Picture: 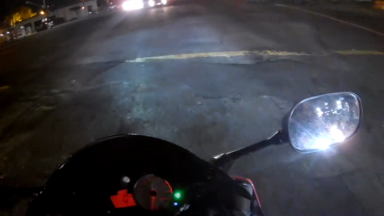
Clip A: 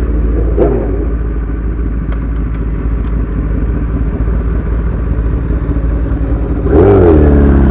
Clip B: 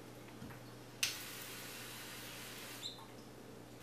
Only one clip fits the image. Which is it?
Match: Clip A